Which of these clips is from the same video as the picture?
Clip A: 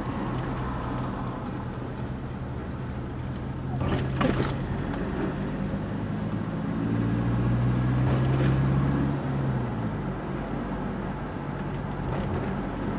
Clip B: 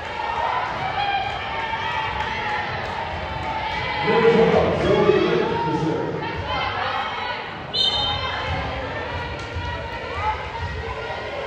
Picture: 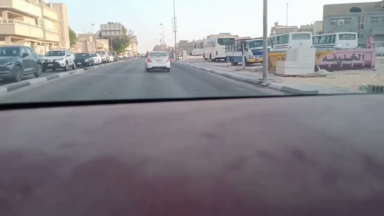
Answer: A